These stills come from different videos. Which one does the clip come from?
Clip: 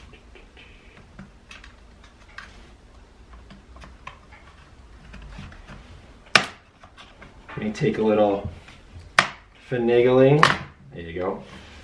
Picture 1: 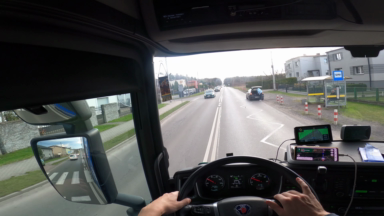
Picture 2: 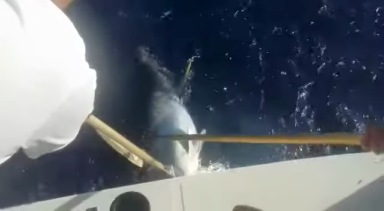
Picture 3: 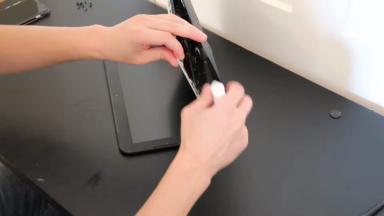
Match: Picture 3